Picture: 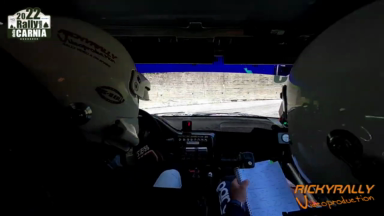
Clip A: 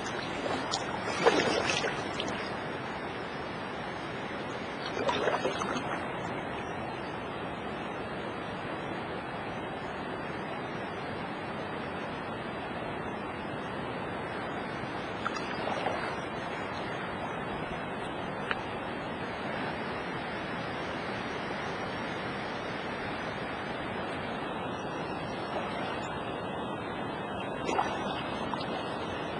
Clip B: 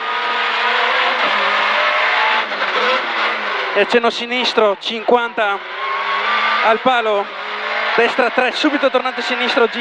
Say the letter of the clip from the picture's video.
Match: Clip B